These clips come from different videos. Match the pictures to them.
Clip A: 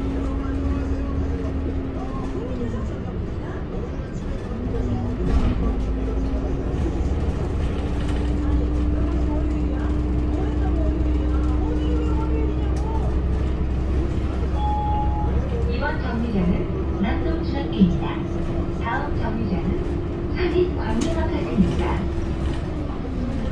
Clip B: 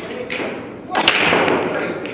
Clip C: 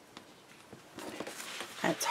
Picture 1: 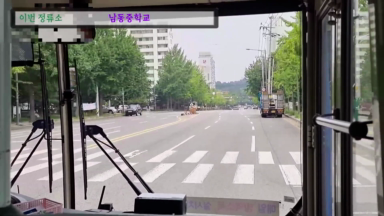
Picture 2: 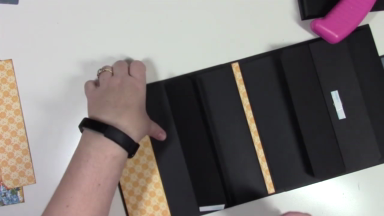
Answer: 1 A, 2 C